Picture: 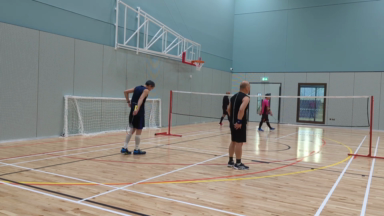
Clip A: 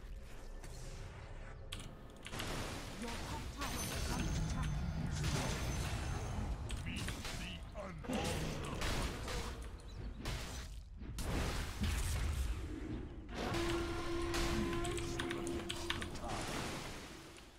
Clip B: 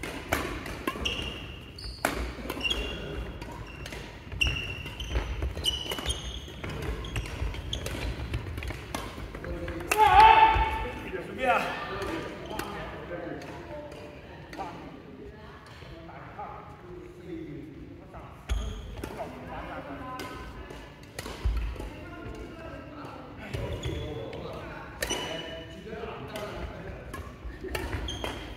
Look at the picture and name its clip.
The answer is B